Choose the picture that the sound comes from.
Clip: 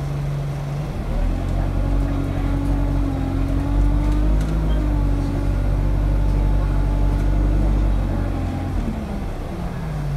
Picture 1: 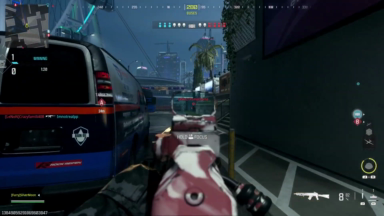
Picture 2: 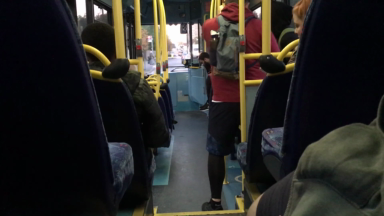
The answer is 2